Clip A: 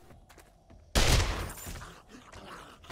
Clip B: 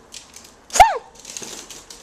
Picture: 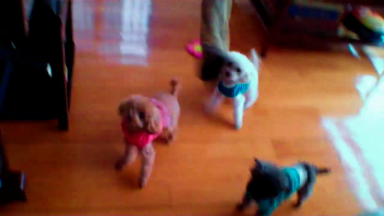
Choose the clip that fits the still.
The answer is B